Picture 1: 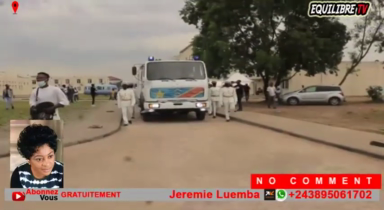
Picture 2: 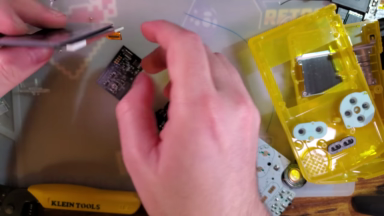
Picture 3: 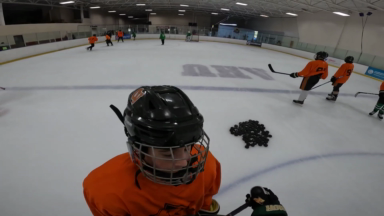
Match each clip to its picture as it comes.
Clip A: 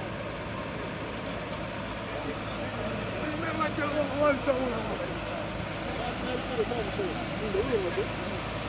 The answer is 1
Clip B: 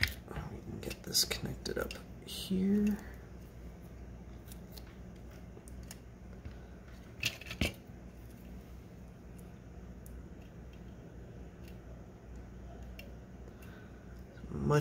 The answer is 2